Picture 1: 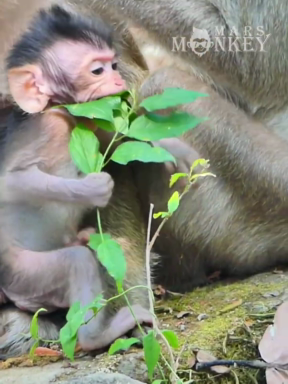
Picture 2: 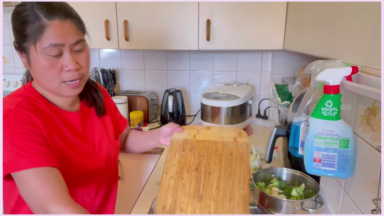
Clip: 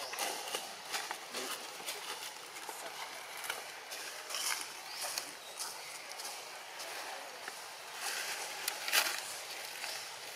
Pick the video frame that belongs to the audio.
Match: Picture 1